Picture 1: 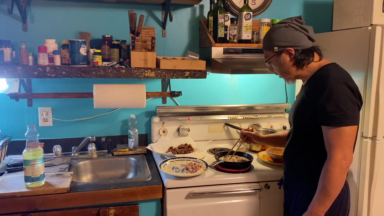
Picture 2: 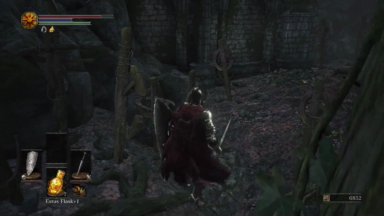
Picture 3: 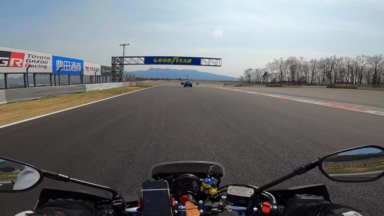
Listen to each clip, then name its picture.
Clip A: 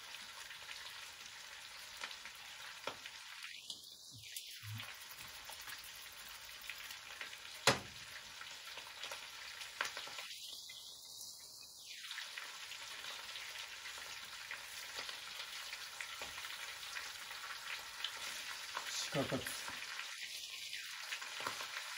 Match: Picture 1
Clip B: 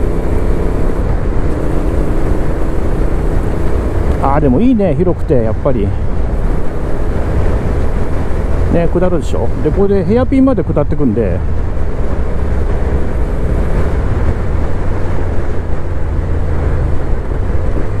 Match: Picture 3